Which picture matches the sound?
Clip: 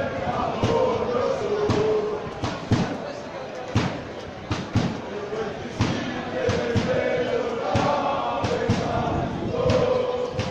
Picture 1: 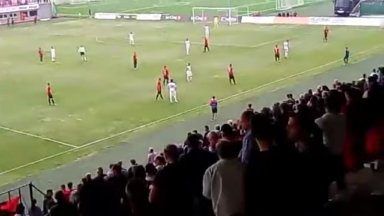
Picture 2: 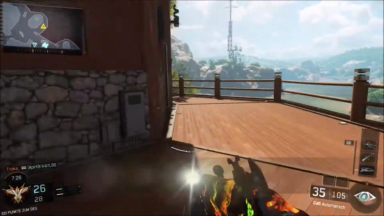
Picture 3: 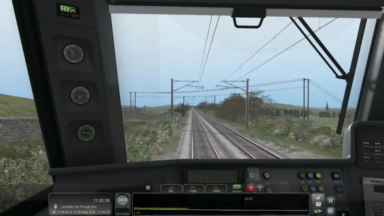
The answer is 1